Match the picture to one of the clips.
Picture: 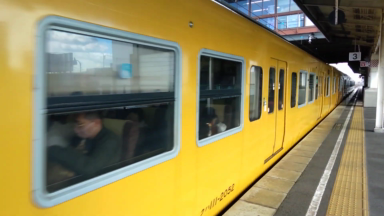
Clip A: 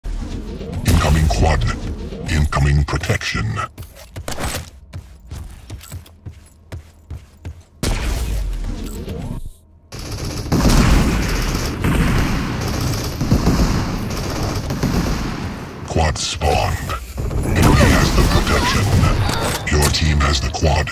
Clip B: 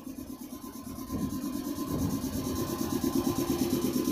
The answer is B